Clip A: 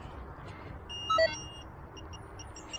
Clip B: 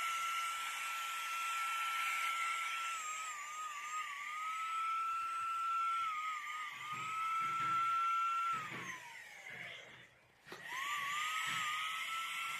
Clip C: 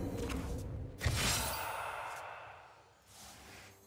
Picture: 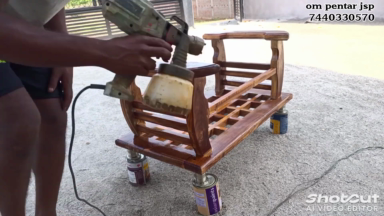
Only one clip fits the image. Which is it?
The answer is B